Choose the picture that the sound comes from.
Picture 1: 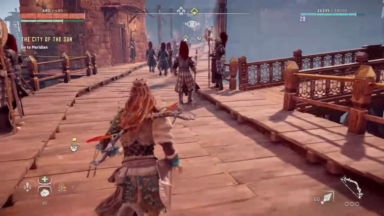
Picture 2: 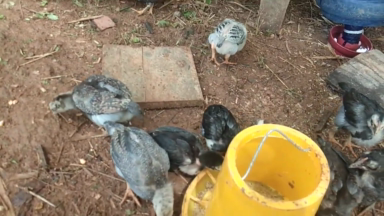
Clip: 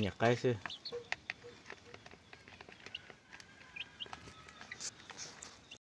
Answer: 2